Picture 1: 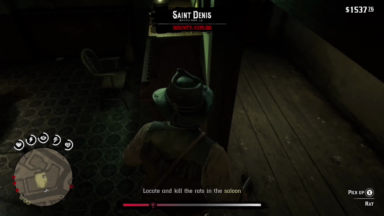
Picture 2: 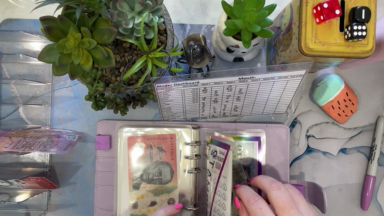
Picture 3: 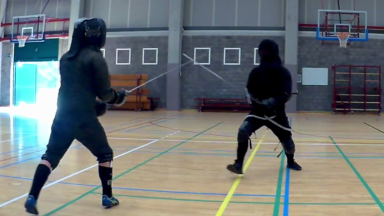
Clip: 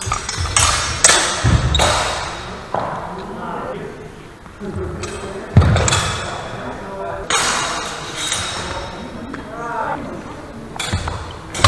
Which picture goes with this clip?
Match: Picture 3